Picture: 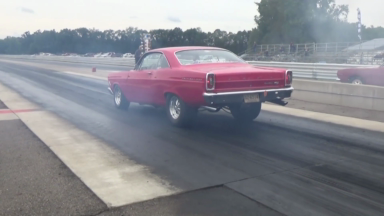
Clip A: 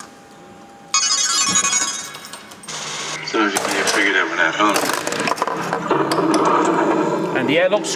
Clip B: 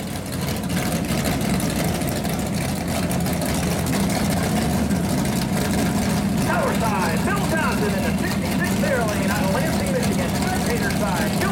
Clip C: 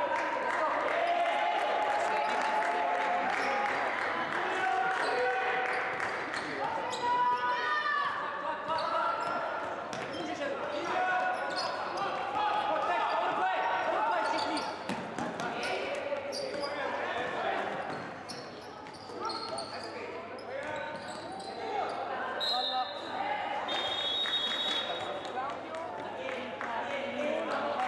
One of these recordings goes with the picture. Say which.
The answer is B